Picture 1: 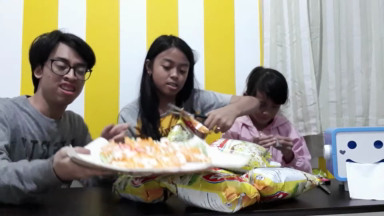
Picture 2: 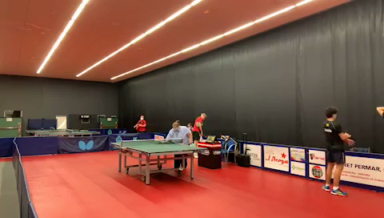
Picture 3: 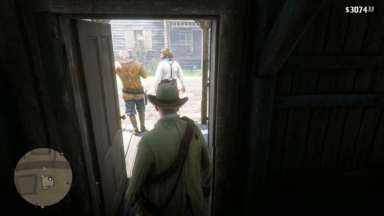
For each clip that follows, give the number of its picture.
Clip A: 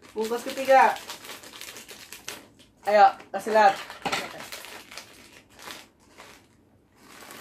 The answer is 1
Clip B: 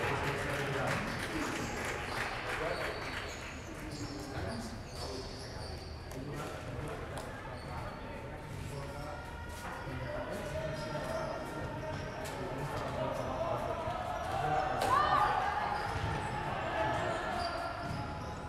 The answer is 2